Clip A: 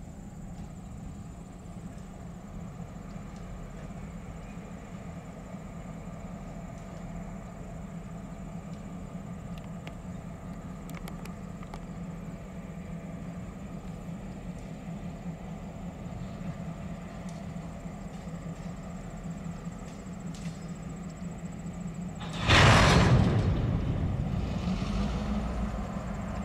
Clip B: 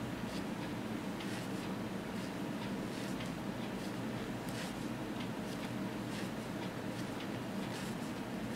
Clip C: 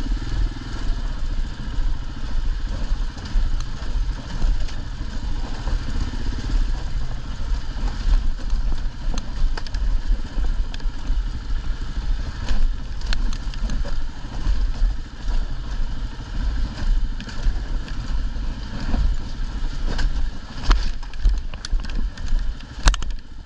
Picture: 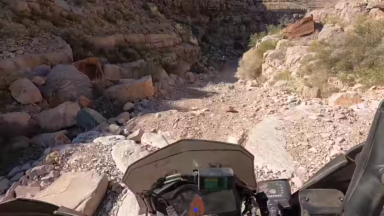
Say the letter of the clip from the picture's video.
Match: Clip C